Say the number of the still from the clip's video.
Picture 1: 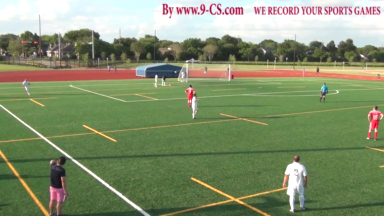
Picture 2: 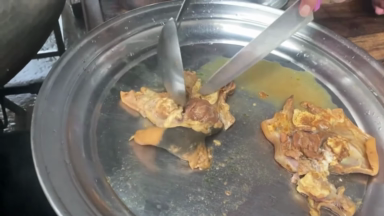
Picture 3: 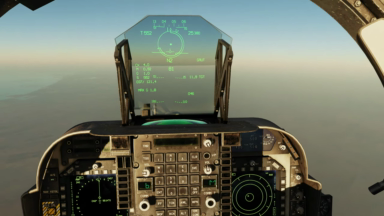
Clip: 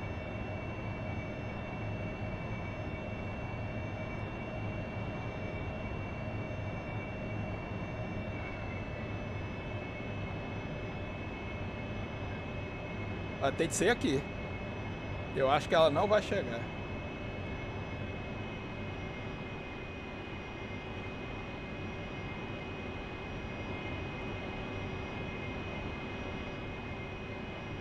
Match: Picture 3